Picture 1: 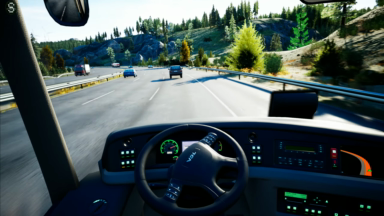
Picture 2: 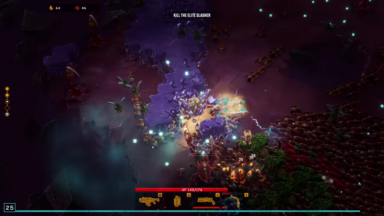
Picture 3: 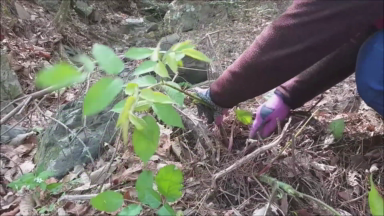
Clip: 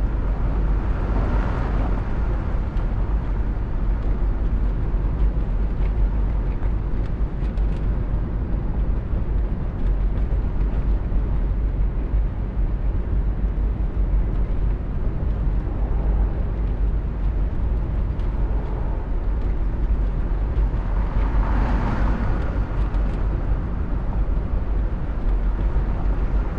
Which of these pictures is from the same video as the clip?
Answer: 1